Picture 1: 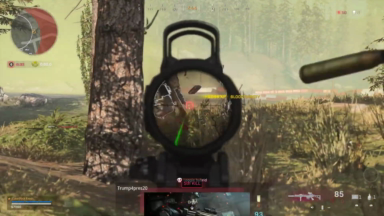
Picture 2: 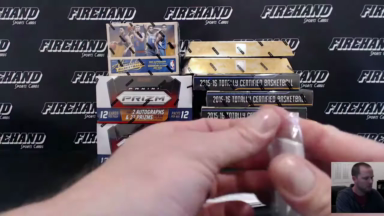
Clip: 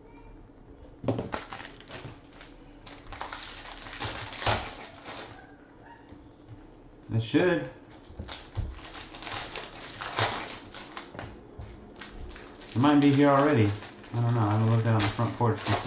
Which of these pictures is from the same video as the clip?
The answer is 2